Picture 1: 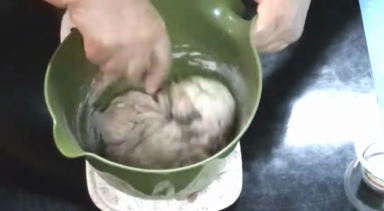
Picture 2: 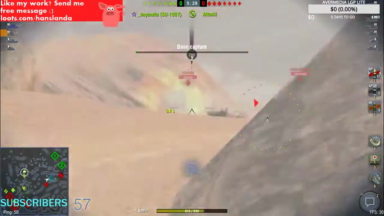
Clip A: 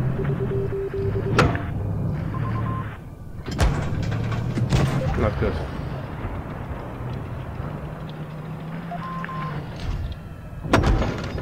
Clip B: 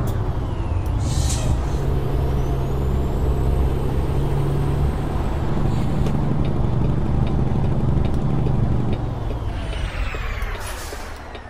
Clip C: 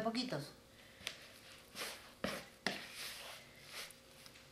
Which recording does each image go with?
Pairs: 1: C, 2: A